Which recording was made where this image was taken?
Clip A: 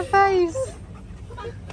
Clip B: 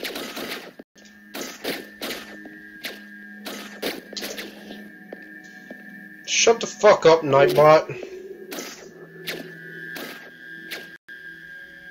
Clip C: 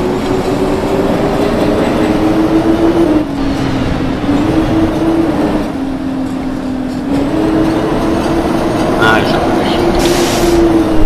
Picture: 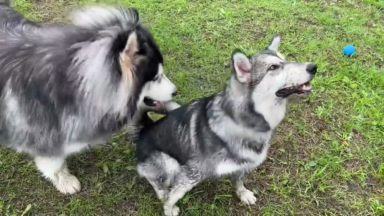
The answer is A